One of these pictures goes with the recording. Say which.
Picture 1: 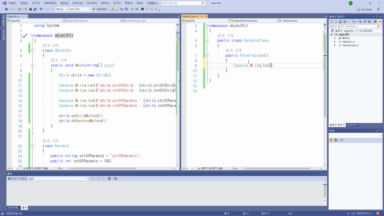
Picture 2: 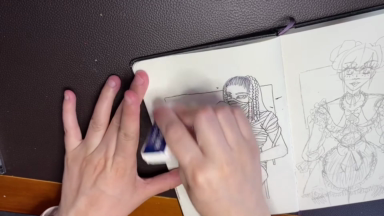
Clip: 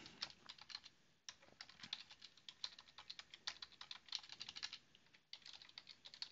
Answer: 1